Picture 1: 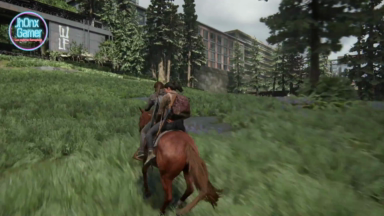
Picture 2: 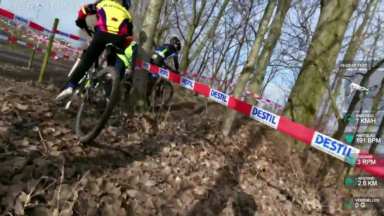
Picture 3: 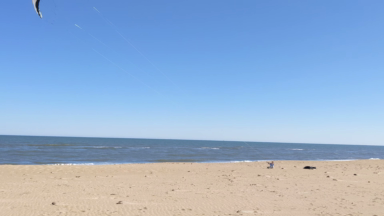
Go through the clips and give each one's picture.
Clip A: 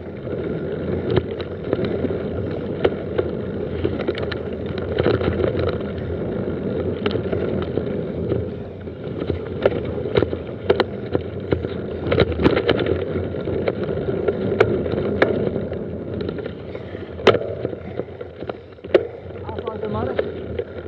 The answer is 2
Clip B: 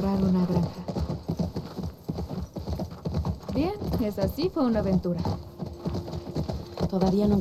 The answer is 1